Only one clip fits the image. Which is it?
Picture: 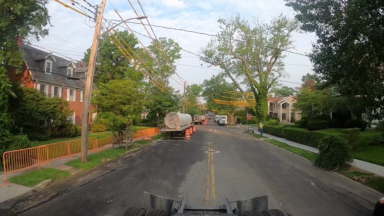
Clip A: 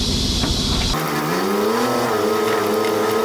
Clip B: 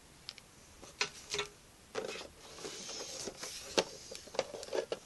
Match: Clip A